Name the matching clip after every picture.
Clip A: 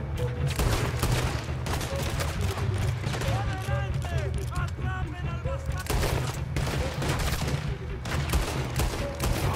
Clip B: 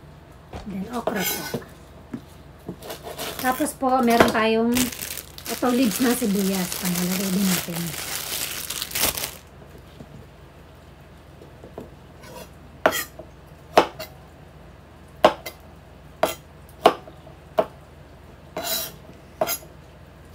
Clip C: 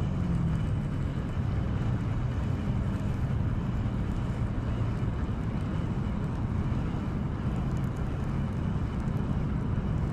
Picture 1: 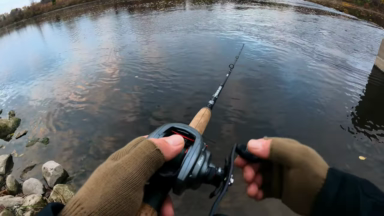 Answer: C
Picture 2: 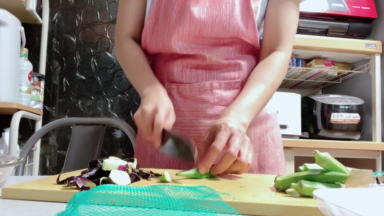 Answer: B